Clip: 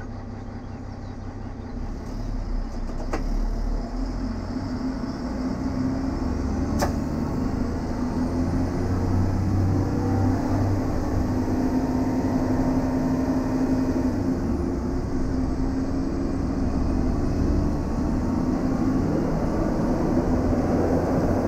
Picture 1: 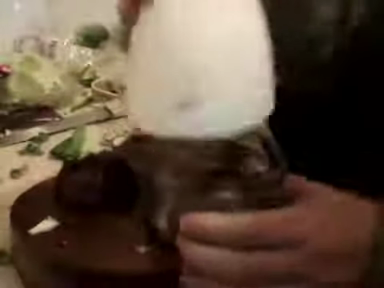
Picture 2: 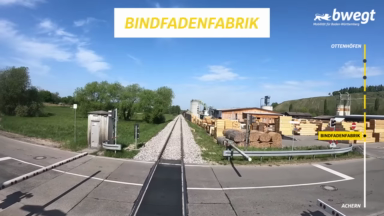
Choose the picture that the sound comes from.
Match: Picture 2